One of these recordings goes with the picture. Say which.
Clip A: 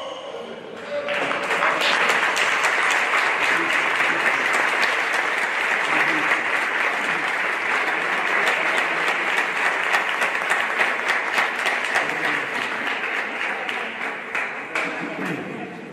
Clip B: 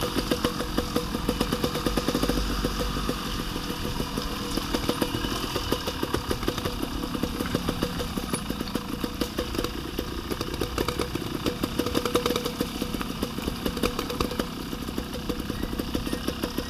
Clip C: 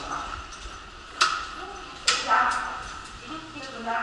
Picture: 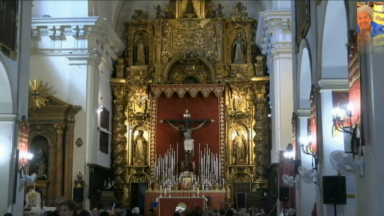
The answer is A